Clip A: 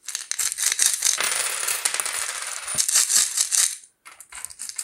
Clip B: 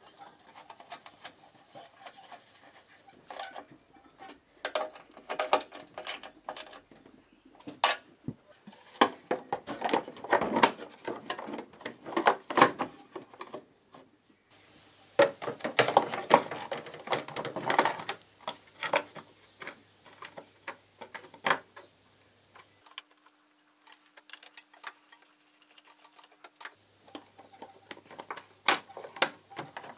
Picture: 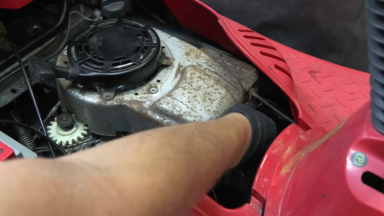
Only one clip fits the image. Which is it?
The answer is B